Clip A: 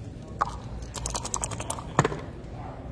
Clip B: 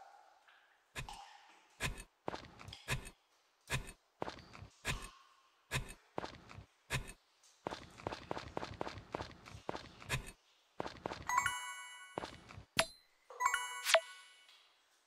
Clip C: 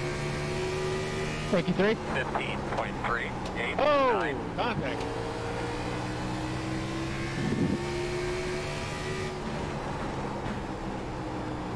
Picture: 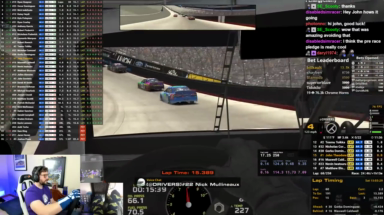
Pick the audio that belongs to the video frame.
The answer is C